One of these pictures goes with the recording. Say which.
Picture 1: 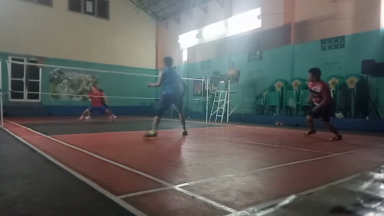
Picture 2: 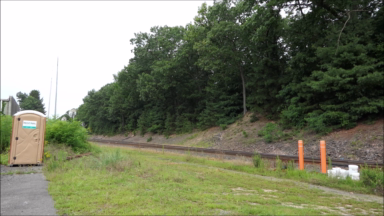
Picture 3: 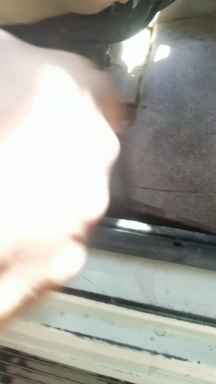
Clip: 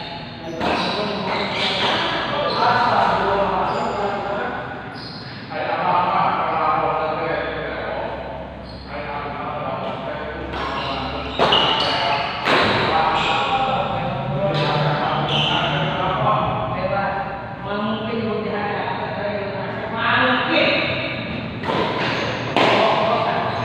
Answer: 1